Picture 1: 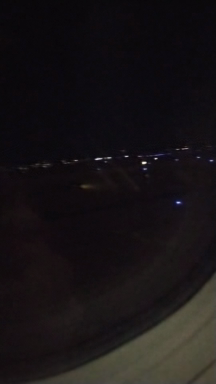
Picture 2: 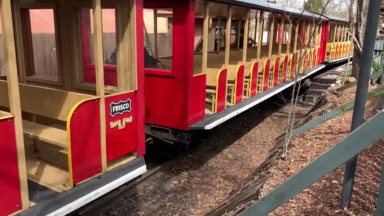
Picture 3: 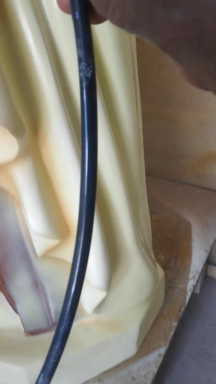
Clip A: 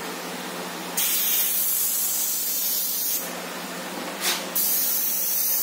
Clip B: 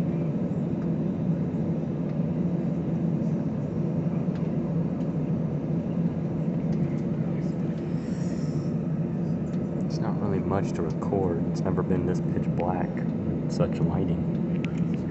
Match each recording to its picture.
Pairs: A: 3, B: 1